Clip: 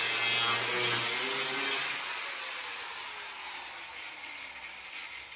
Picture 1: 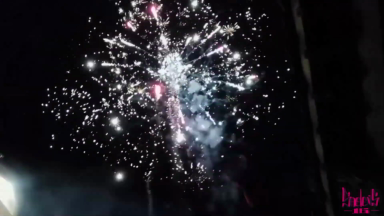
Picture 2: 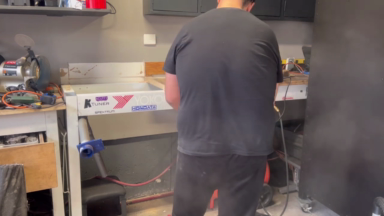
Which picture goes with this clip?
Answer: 2